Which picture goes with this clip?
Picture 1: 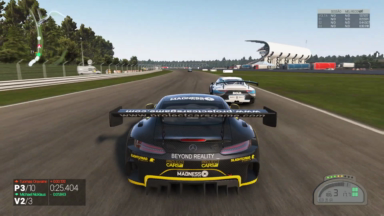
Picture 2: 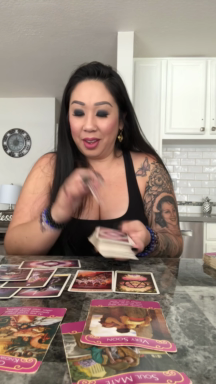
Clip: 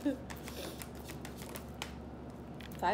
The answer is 2